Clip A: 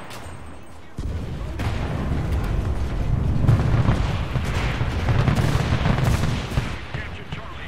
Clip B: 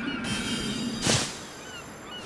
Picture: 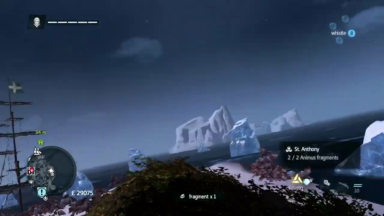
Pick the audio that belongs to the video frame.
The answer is B